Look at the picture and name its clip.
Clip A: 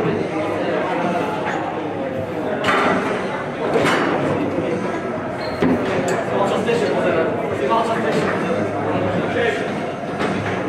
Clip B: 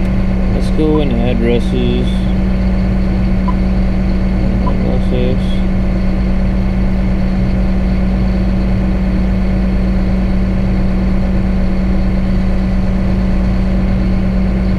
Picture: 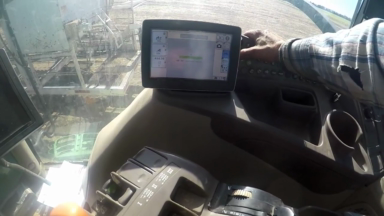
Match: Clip B